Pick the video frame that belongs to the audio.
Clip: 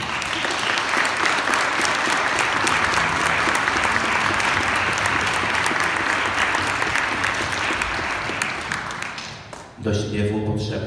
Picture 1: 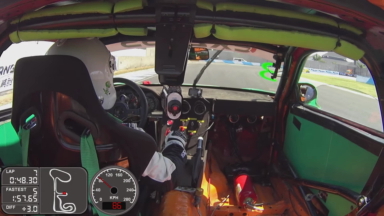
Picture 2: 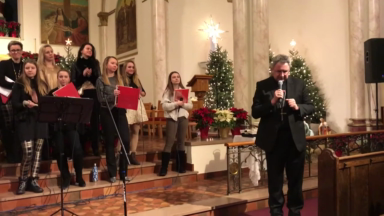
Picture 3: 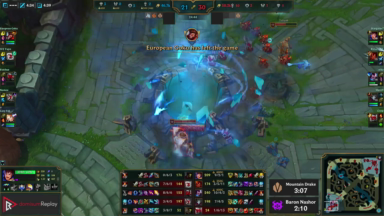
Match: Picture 2